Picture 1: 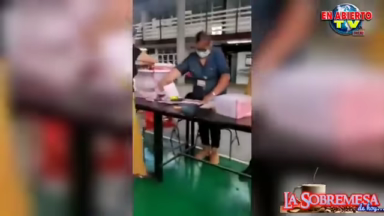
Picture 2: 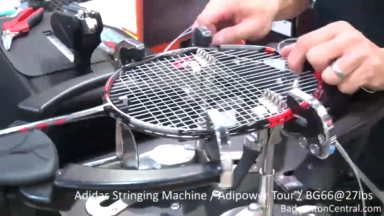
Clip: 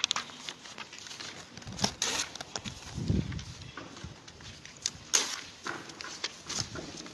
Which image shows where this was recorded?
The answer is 1